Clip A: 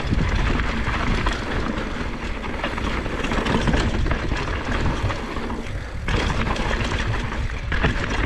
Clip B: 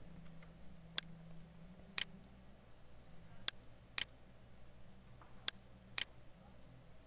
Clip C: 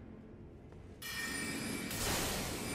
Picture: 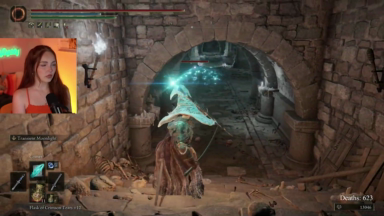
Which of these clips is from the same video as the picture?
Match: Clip C